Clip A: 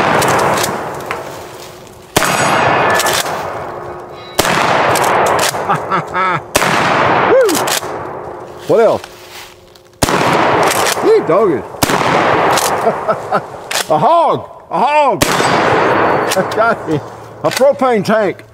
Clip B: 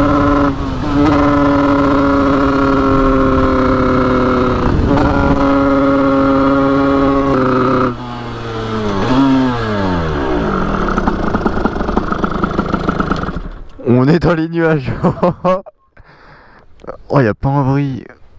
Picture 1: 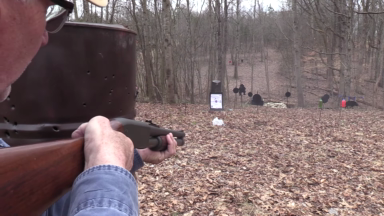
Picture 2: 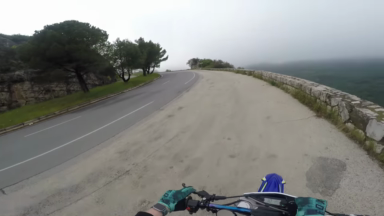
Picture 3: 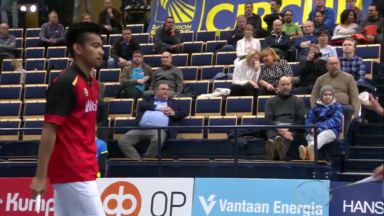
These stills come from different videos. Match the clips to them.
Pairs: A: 1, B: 2